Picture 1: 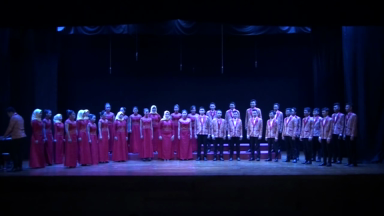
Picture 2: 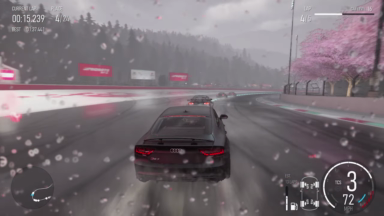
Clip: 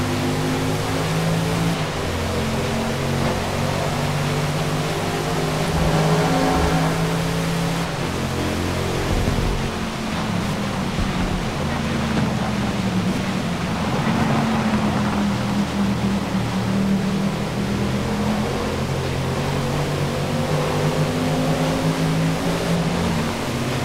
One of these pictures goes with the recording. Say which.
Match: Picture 2